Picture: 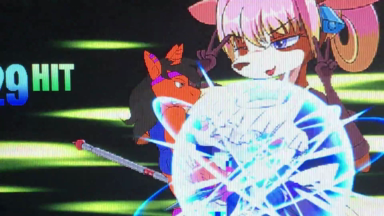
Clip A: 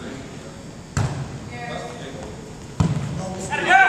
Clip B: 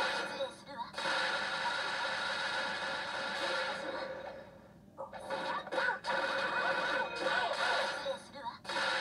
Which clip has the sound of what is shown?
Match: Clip B